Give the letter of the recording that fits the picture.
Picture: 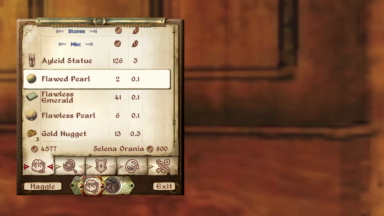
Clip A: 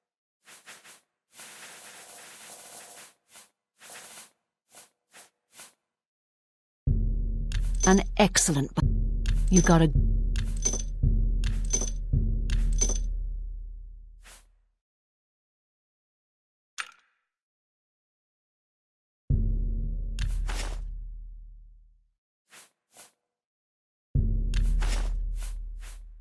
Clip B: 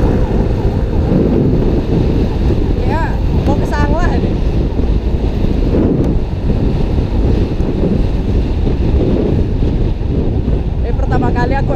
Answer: A